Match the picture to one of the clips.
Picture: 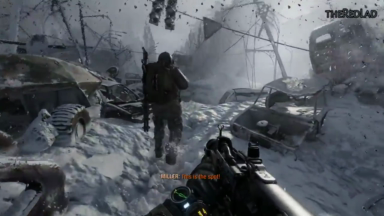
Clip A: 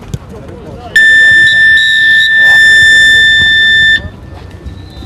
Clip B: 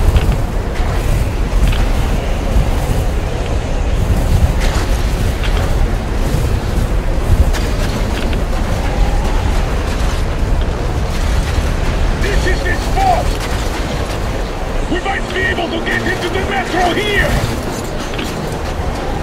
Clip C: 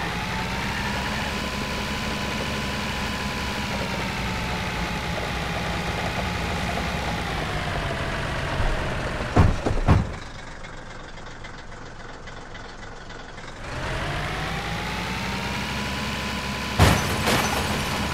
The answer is B